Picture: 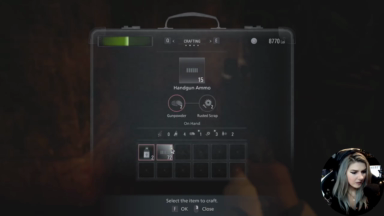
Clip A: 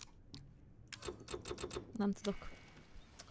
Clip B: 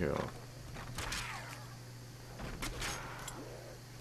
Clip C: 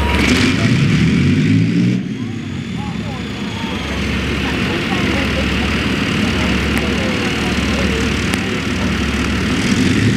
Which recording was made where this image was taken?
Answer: A